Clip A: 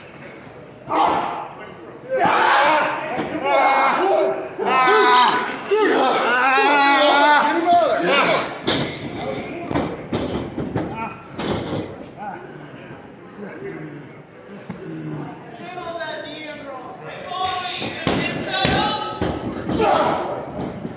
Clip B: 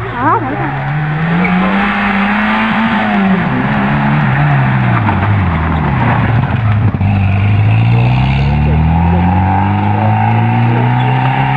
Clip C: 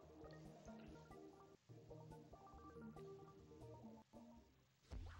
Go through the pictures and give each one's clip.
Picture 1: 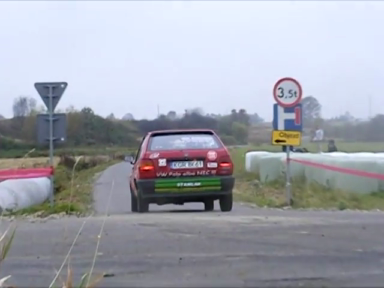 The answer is B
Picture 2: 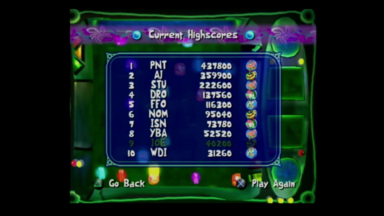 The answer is C